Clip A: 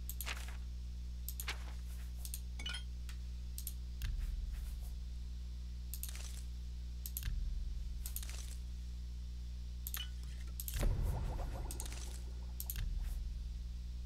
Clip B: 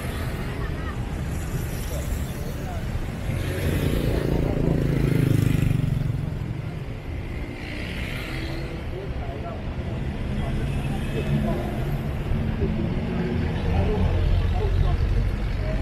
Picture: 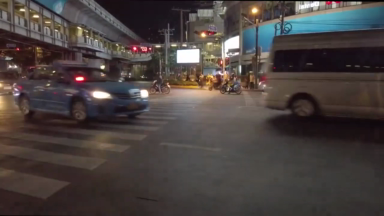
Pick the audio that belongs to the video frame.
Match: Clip B